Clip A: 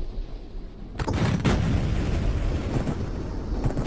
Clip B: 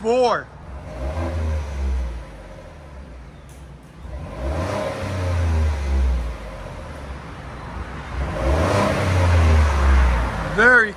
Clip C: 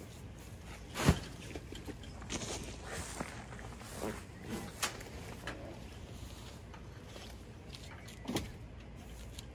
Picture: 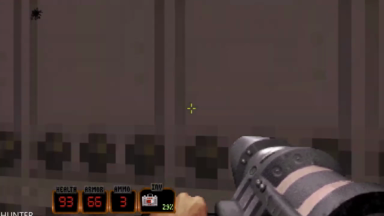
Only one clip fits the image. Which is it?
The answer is A